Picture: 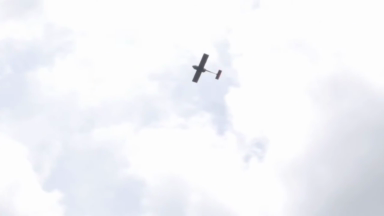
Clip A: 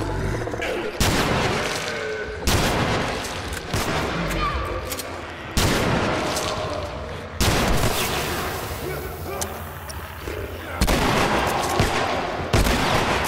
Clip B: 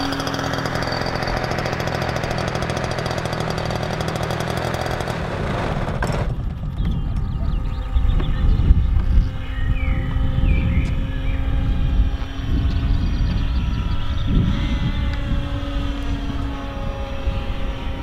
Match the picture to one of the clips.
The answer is B